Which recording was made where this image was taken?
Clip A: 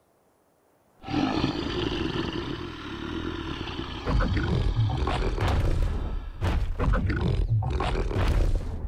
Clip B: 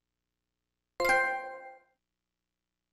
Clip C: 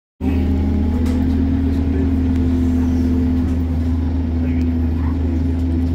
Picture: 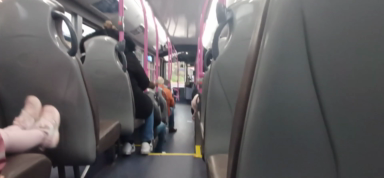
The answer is C